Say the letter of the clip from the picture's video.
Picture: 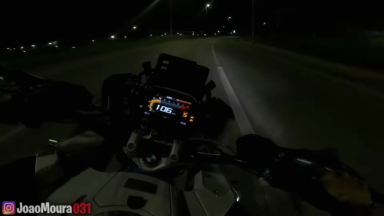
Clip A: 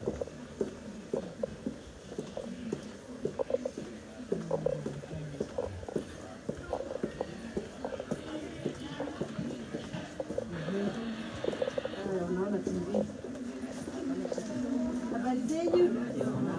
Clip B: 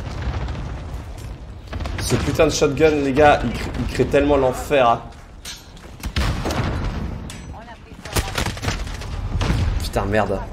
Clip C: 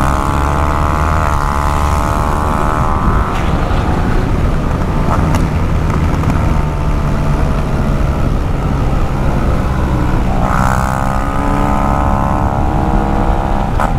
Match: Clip C